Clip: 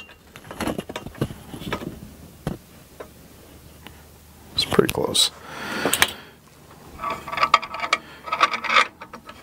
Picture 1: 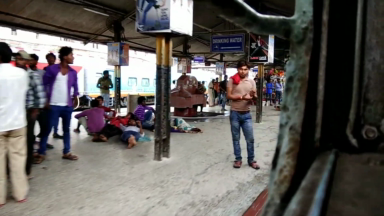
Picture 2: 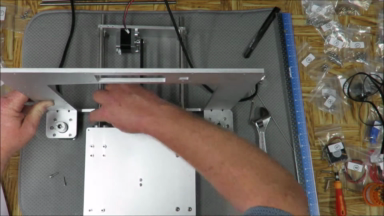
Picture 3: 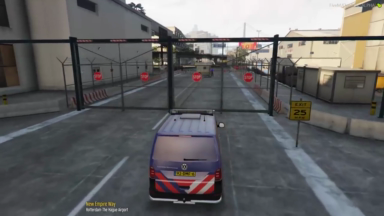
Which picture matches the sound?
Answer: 2